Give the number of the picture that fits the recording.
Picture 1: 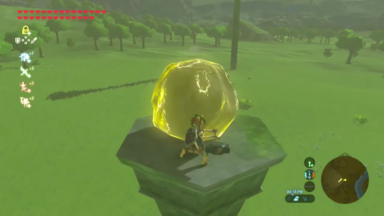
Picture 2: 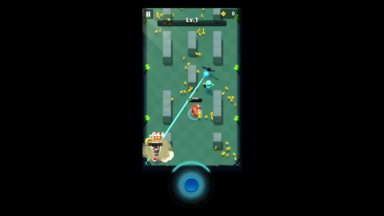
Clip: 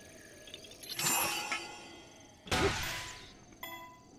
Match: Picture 1